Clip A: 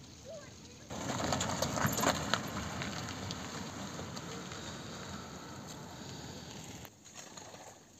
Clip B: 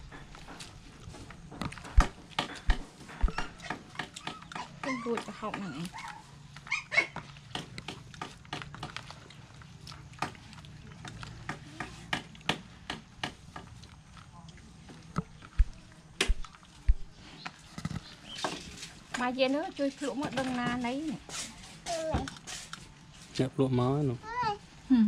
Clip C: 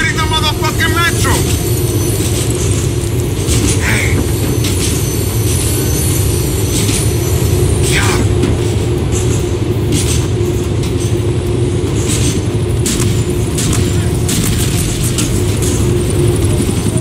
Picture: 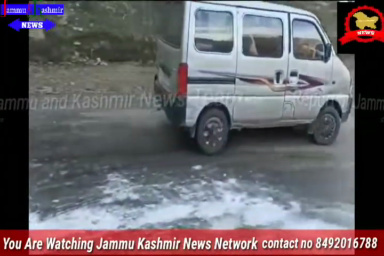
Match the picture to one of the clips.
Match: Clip A